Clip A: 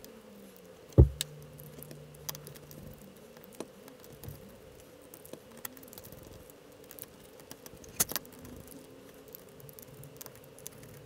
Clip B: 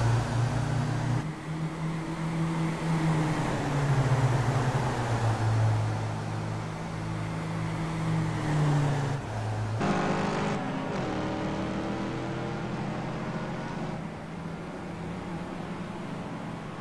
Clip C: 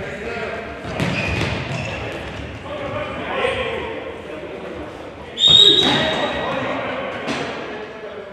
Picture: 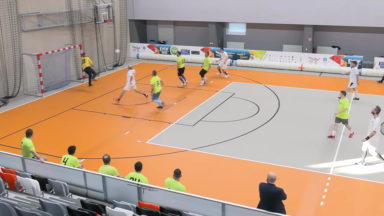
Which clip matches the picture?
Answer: C